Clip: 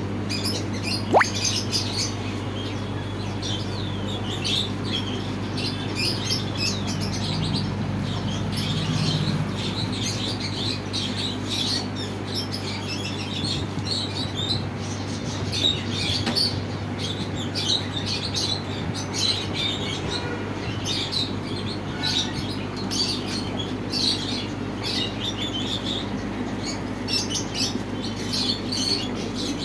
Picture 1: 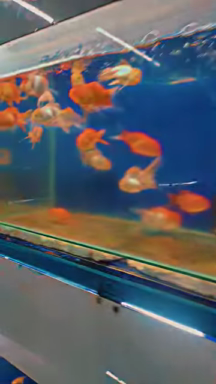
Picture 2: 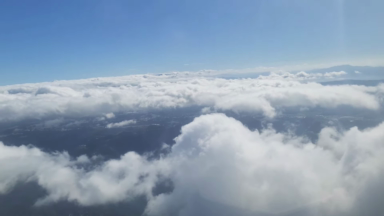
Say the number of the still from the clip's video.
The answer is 1